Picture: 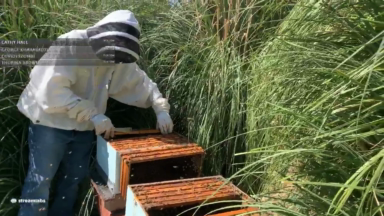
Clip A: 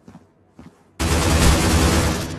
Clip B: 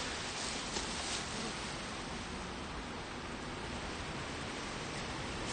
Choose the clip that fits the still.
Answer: B